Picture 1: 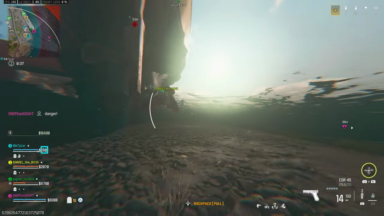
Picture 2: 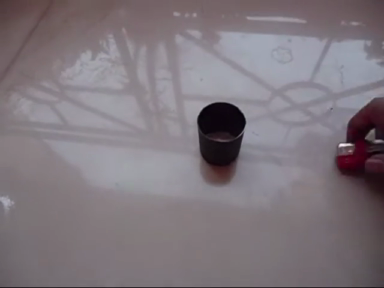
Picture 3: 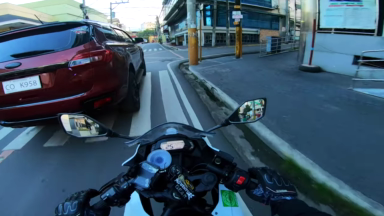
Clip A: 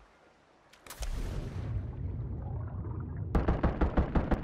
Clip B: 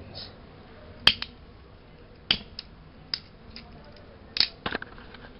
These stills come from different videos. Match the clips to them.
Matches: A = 1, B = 2